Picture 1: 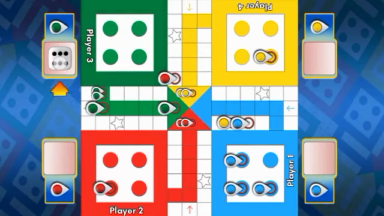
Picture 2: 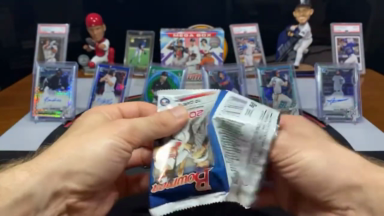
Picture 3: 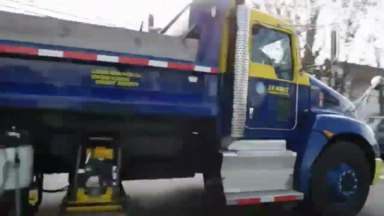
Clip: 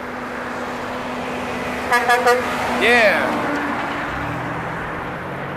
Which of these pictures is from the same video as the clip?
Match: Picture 3